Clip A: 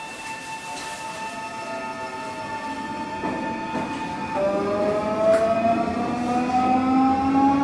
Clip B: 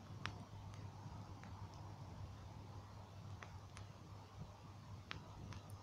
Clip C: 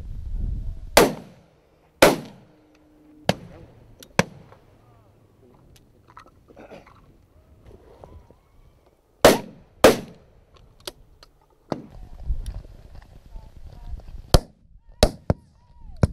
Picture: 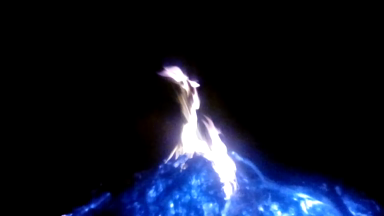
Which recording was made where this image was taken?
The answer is B